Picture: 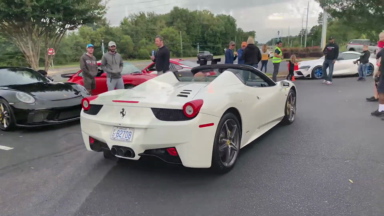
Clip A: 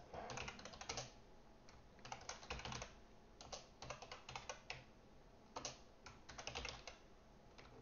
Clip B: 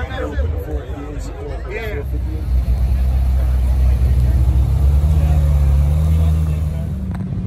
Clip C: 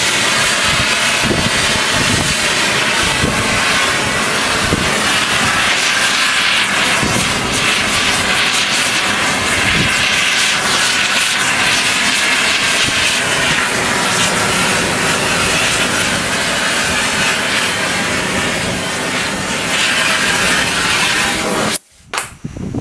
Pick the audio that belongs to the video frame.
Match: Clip B